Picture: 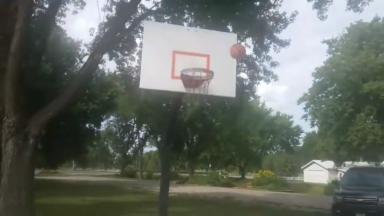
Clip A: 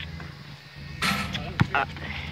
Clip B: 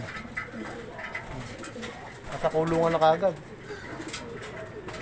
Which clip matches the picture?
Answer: A